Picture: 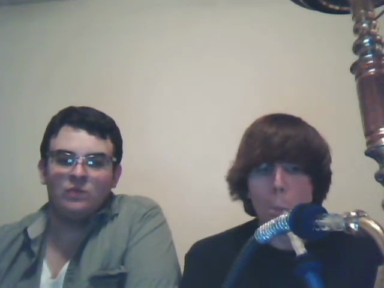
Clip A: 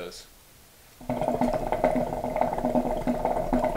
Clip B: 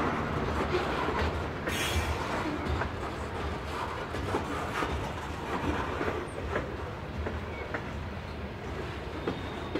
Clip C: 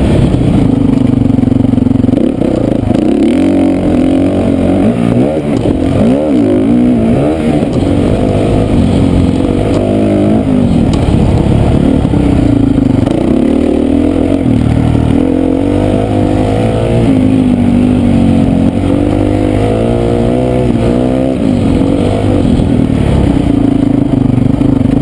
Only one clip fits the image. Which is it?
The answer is A